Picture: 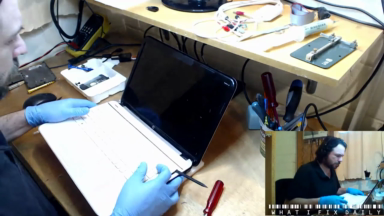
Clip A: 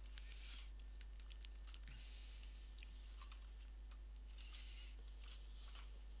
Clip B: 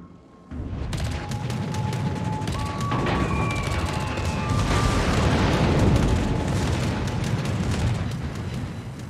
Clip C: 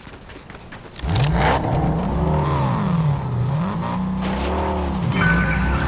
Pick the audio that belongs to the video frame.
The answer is A